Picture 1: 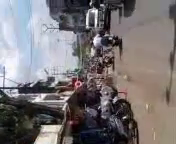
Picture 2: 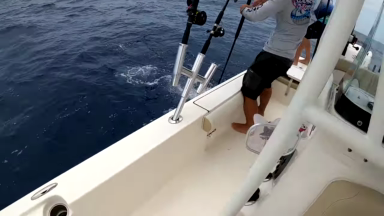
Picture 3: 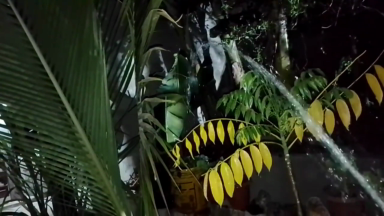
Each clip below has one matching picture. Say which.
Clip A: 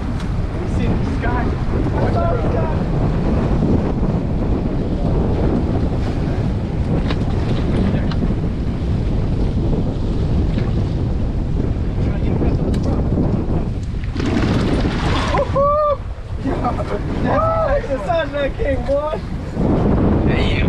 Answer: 2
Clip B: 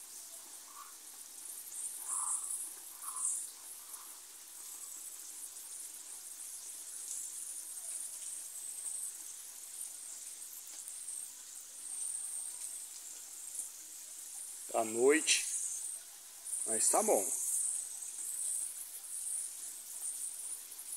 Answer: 3